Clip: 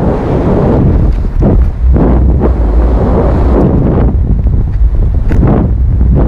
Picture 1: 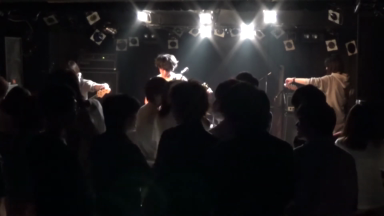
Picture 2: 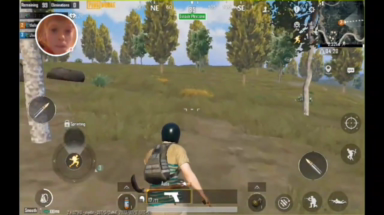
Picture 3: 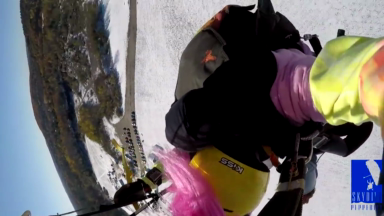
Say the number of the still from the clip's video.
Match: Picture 3